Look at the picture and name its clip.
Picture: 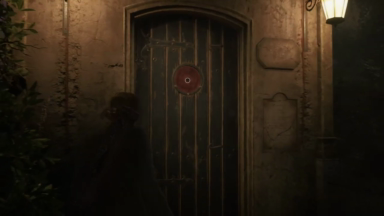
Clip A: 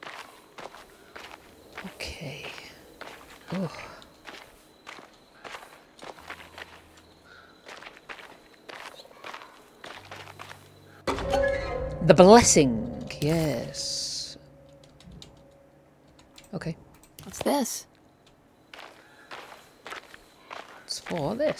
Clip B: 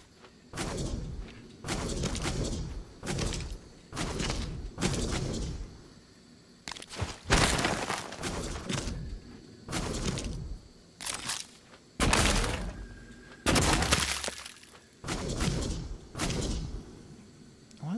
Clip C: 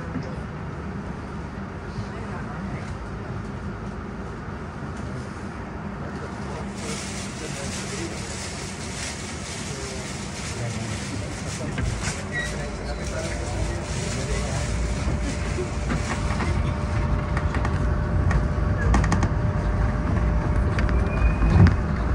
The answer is A